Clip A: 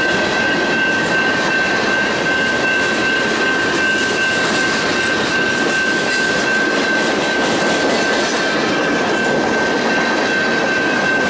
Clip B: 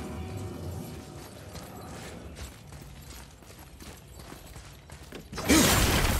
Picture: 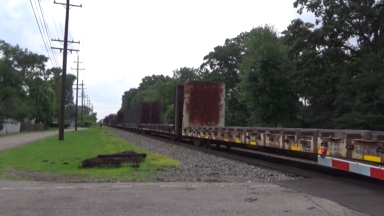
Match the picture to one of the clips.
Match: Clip A